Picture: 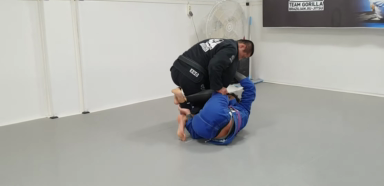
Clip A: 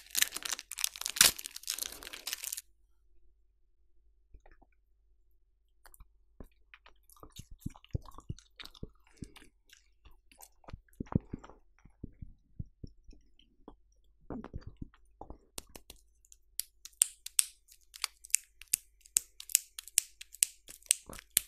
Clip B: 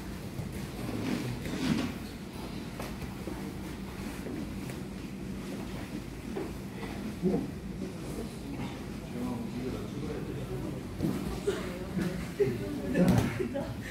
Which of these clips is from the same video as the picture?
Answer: B